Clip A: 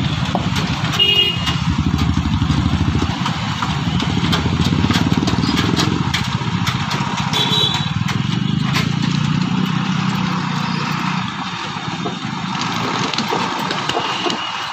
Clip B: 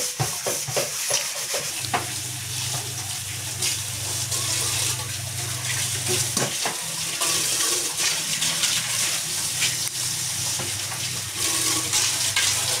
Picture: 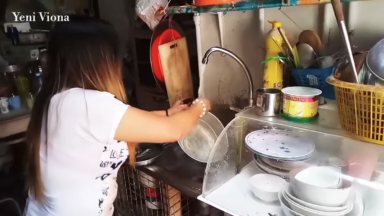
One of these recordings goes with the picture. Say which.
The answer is B